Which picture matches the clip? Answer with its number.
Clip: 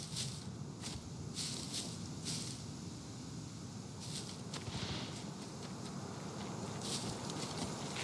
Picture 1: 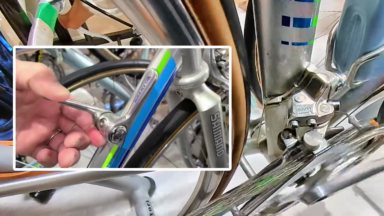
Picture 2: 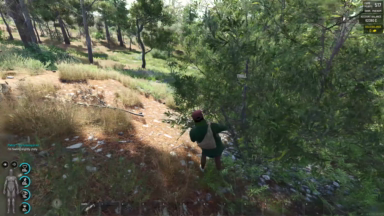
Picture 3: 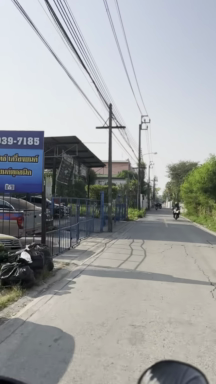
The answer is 2